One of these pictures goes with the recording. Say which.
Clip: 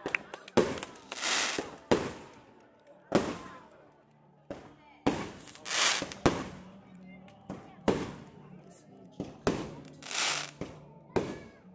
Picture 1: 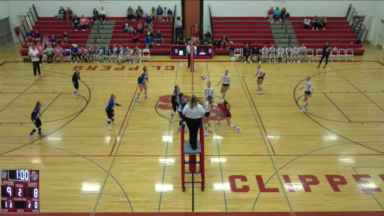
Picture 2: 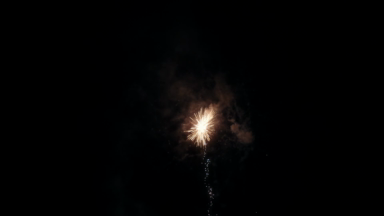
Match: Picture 2